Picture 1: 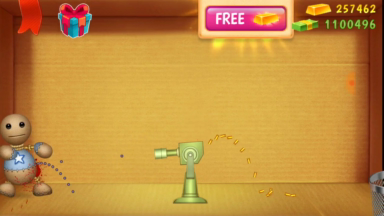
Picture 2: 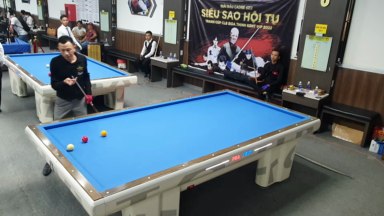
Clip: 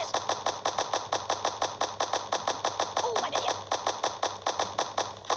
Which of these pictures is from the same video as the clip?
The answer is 1